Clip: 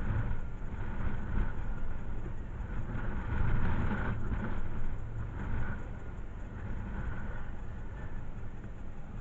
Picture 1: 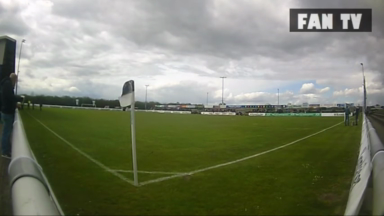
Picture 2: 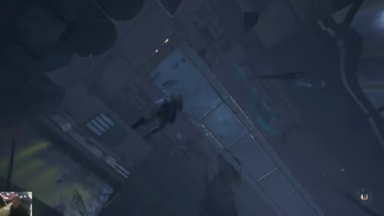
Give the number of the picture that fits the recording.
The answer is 1